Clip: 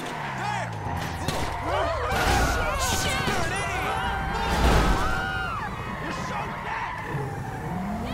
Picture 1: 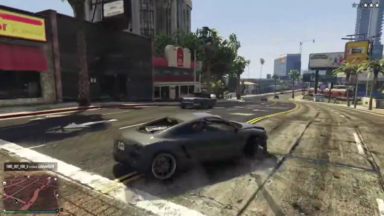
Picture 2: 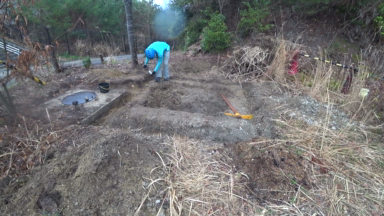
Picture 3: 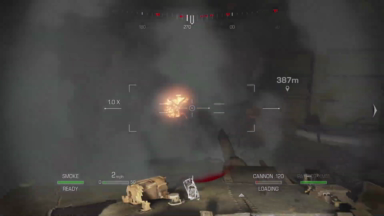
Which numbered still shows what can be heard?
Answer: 1